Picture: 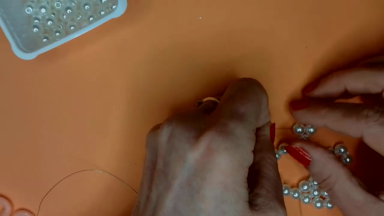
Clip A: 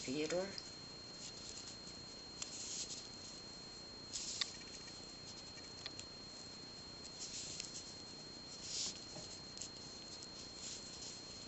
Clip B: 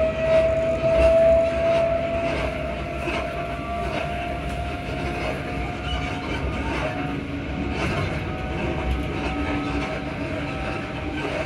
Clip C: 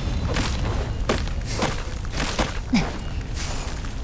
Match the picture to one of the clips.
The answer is A